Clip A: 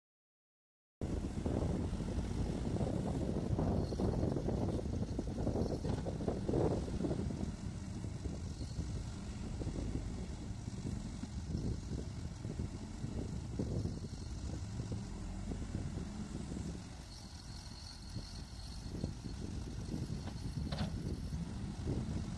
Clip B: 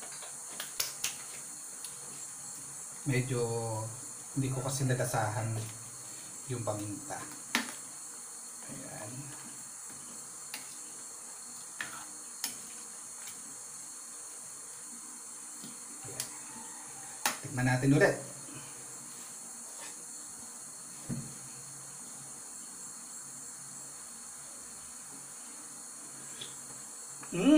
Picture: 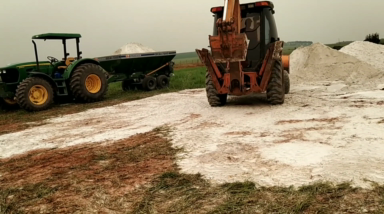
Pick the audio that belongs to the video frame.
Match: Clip A